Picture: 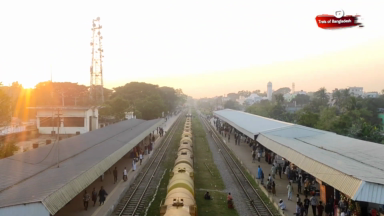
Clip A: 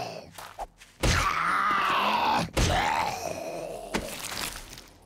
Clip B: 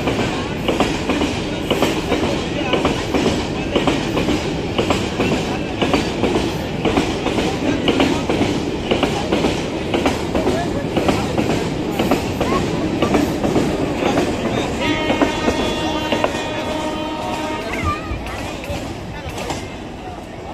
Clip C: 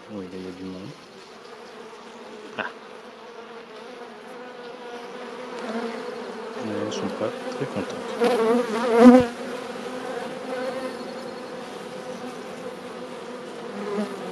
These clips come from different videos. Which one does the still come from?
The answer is B